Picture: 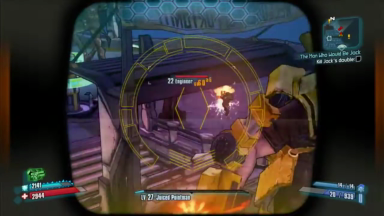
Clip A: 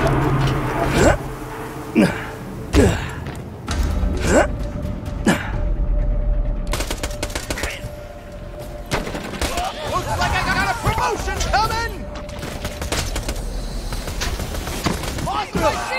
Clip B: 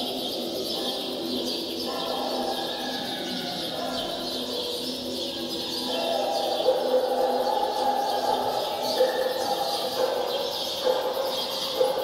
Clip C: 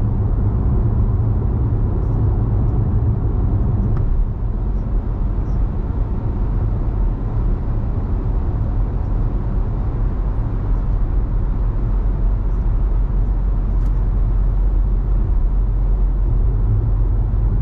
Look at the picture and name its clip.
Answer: A